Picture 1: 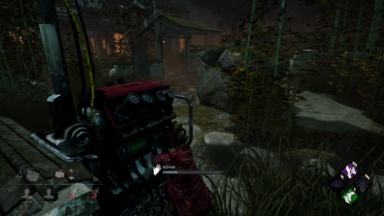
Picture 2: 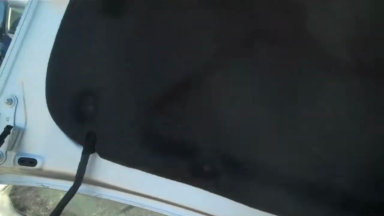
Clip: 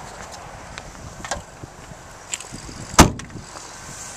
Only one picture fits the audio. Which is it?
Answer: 2